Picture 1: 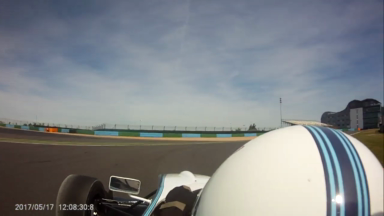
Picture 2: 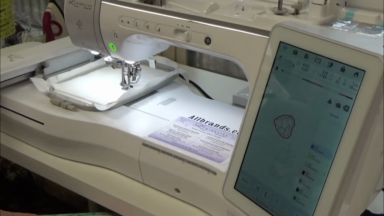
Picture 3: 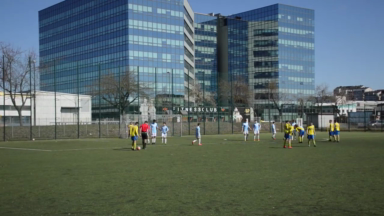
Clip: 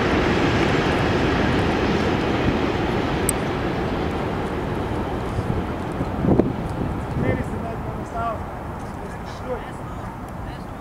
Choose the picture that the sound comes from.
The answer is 3